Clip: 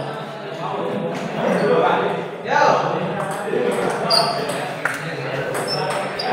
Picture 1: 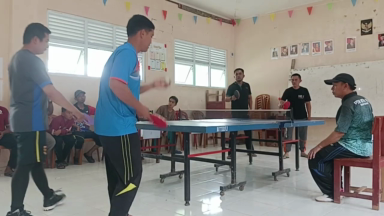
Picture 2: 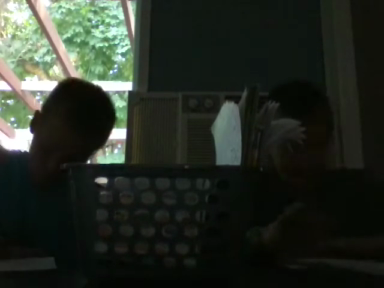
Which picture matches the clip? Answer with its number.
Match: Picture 1